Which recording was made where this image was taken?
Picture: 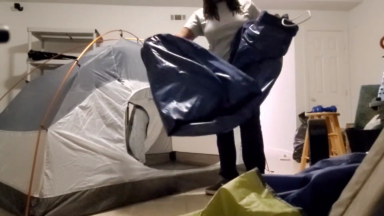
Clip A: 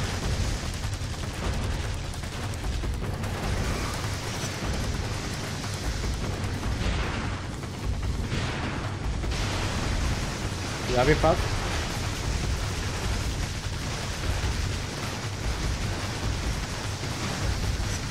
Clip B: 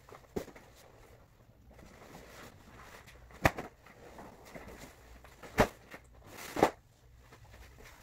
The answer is B